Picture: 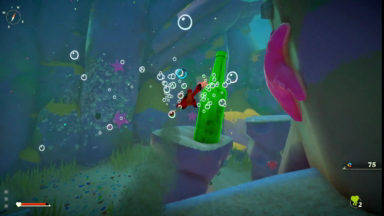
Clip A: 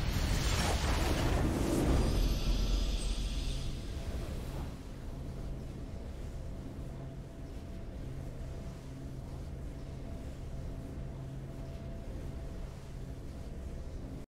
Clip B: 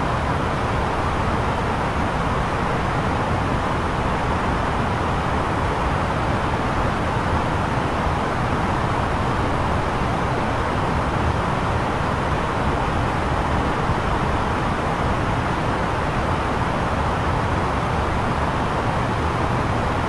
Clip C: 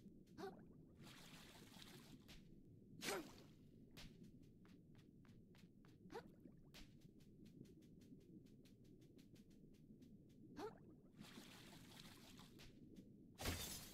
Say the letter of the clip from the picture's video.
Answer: C